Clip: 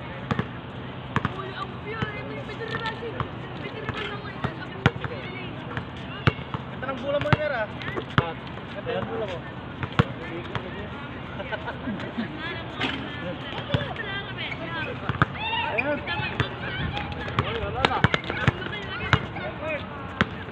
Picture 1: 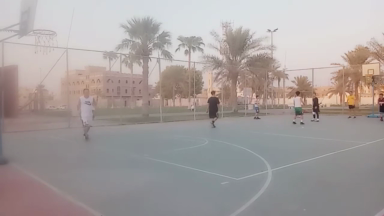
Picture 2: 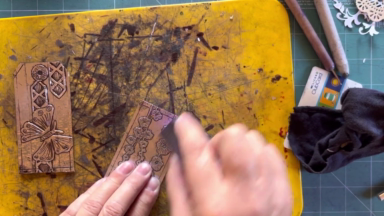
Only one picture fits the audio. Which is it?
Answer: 1